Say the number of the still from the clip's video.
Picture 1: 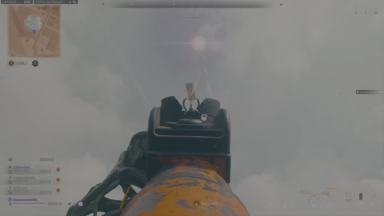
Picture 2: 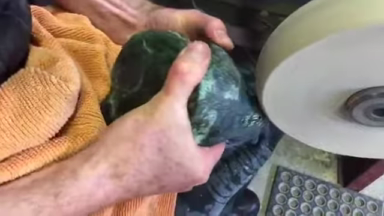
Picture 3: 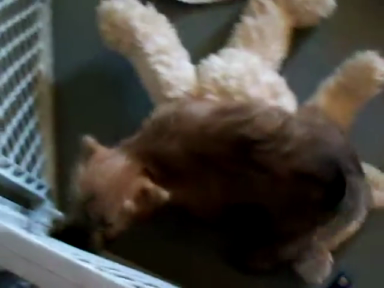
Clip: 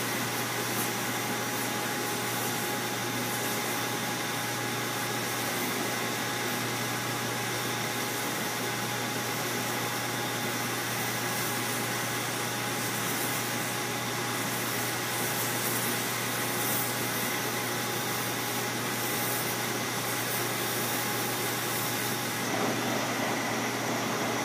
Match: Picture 2